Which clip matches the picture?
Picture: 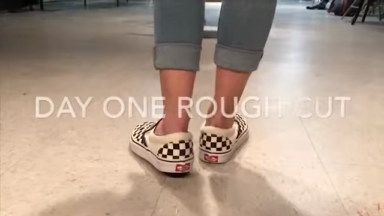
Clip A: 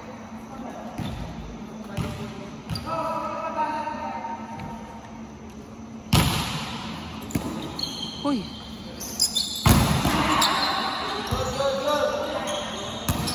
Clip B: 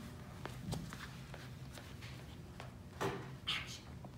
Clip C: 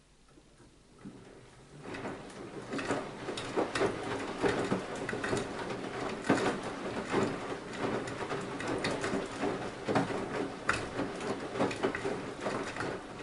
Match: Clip B